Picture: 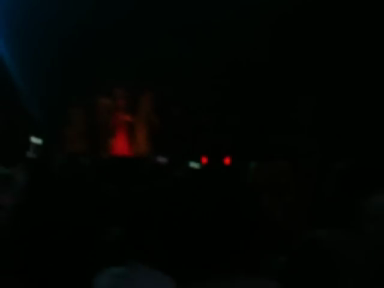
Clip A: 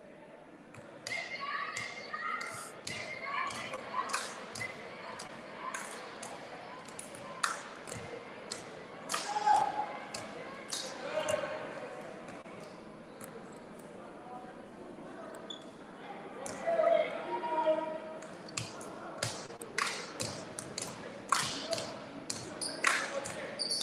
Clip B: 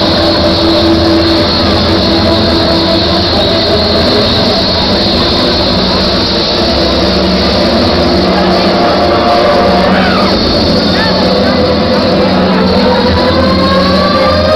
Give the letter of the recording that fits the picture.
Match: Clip B